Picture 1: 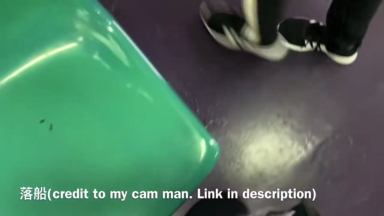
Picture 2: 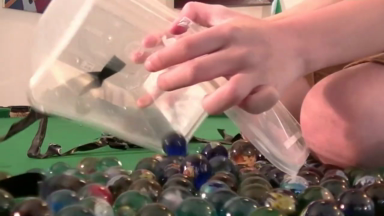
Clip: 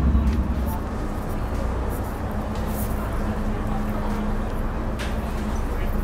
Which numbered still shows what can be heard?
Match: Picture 1